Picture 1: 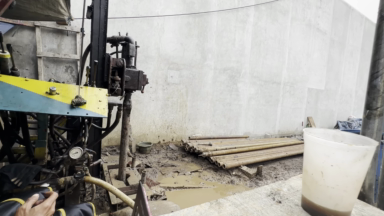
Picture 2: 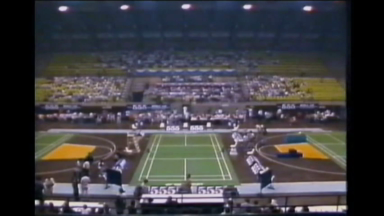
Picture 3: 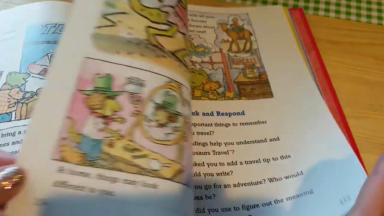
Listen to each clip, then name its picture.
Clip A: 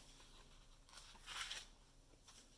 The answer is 3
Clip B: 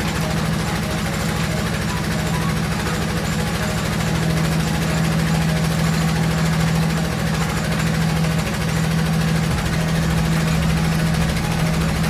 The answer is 1